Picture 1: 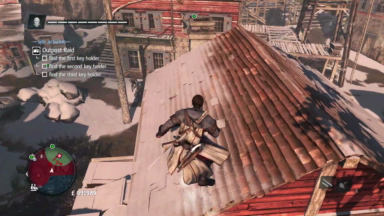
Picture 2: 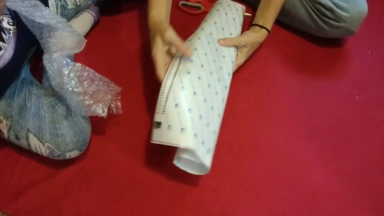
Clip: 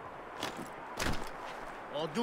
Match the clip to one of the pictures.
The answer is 1